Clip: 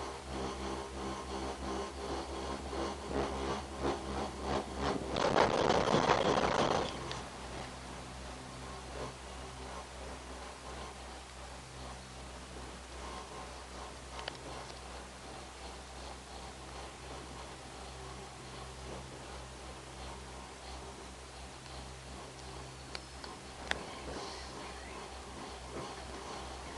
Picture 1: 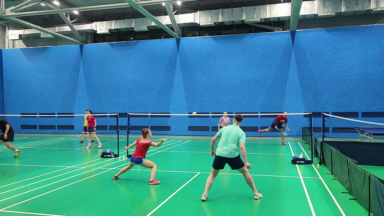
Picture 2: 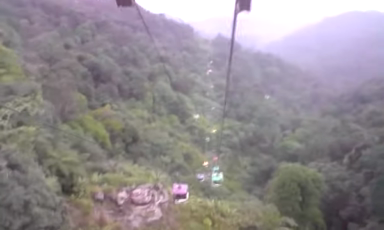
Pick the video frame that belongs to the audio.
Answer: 2